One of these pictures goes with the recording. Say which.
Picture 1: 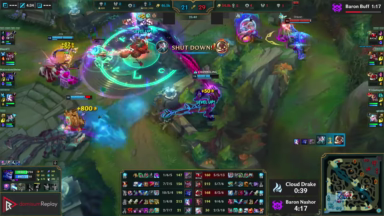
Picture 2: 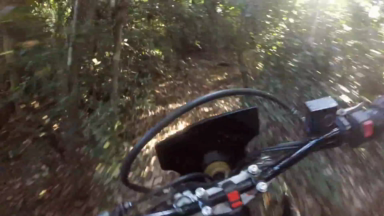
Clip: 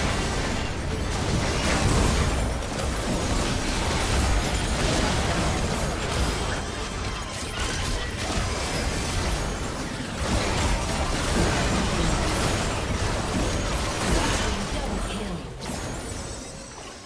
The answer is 1